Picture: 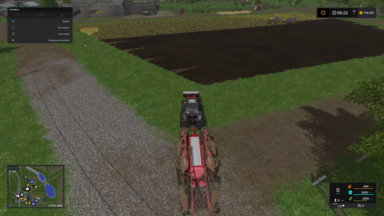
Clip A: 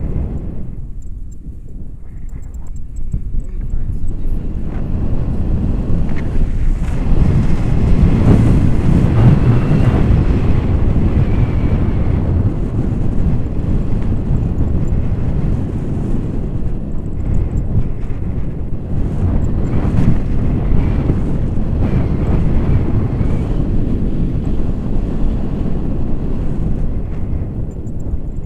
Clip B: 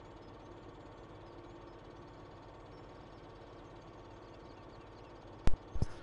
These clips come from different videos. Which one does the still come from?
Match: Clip B